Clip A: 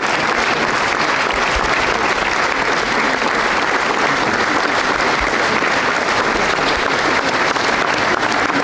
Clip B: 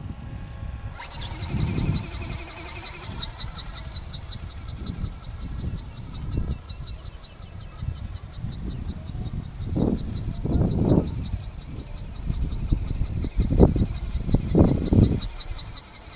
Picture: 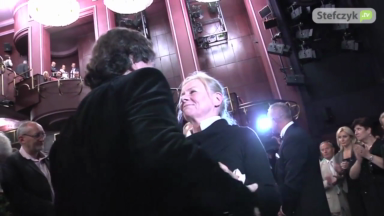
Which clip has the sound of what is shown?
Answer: A